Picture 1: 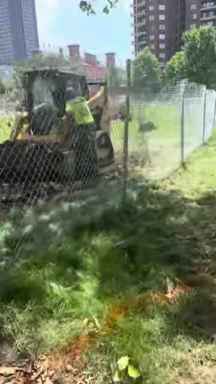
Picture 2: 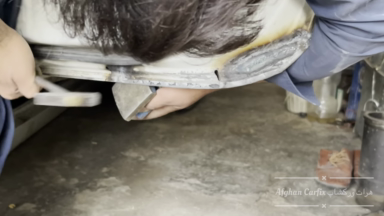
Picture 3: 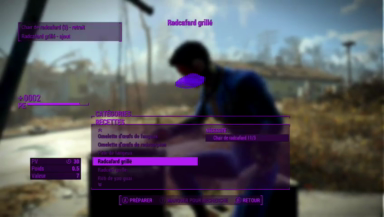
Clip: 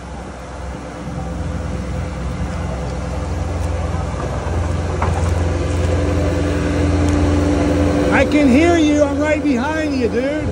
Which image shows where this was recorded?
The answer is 1